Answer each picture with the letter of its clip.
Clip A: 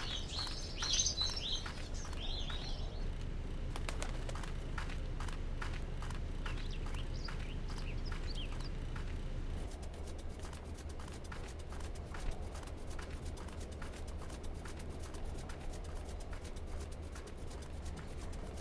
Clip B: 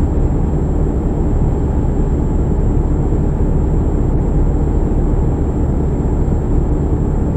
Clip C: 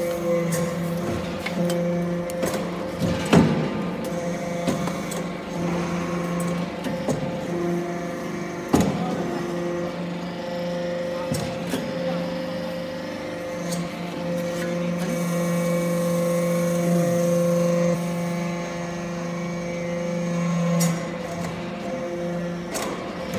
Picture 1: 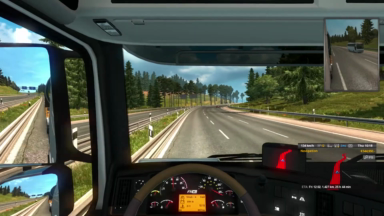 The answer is B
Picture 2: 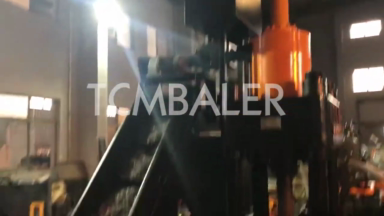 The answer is C